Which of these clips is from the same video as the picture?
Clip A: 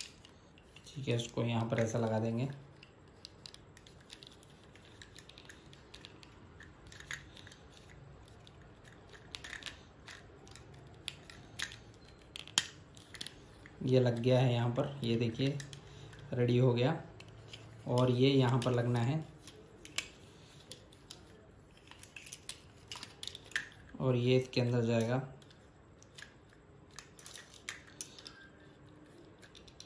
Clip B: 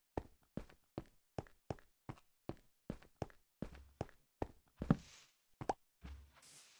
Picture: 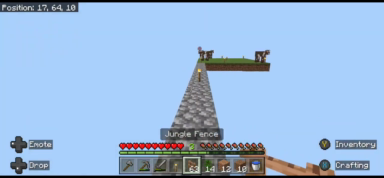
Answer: B